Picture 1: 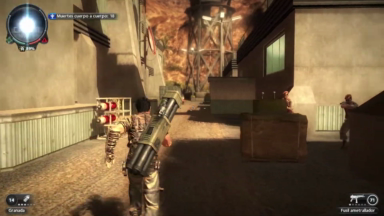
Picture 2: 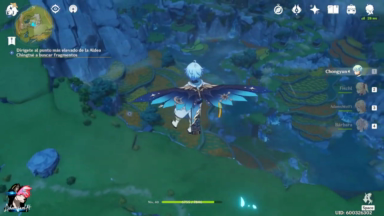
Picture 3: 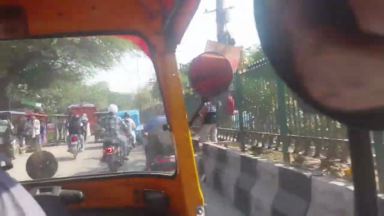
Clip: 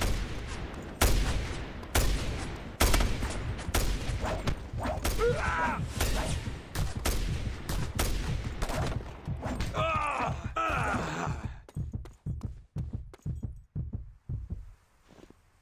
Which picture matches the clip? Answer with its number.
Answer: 1